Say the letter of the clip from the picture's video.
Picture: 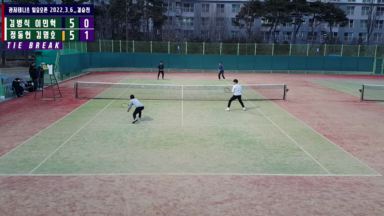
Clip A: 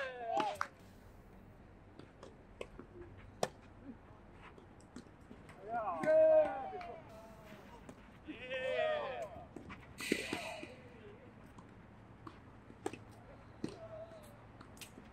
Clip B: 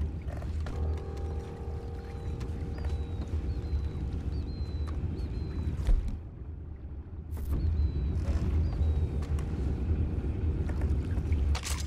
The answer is A